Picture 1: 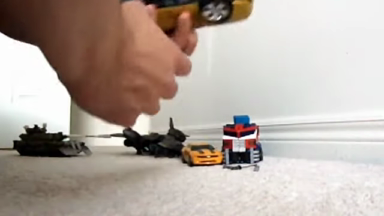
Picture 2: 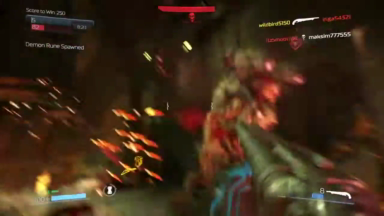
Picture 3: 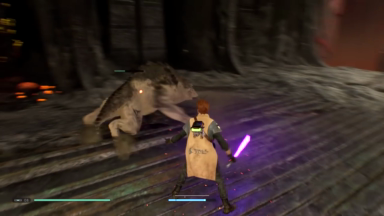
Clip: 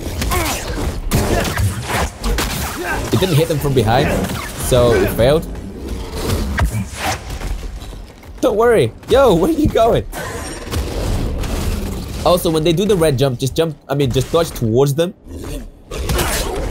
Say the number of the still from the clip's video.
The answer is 3